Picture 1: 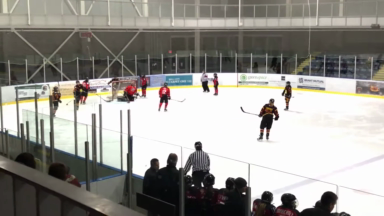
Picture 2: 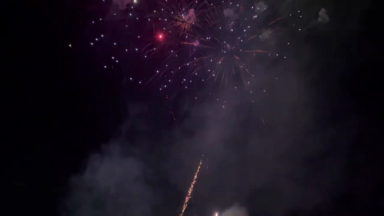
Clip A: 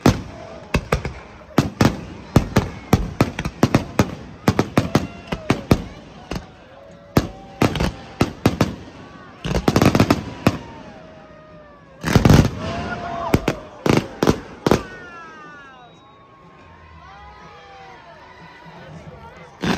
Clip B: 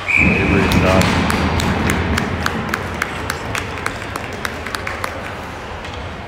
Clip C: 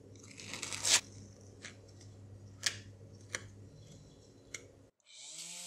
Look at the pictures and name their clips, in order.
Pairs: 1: B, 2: A